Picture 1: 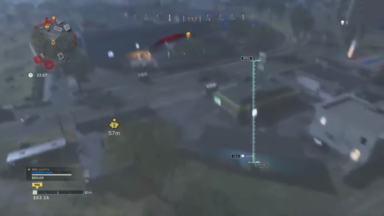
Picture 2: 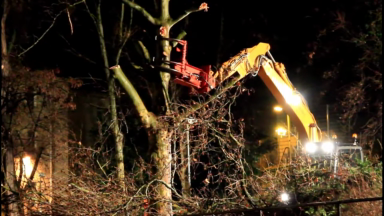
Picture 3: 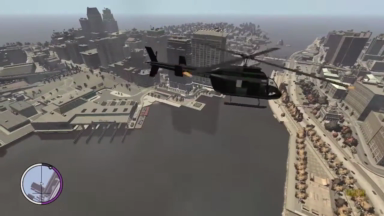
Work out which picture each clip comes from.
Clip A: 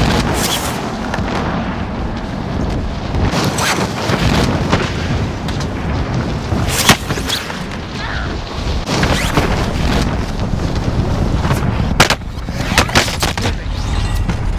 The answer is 1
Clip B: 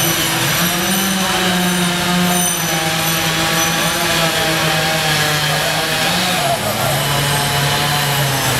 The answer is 2